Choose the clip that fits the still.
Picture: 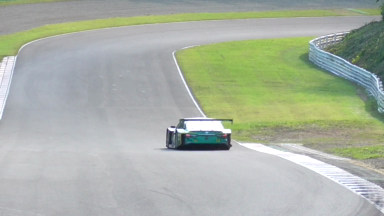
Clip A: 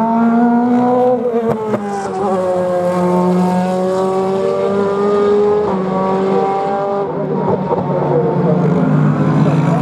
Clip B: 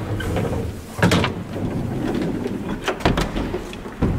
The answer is A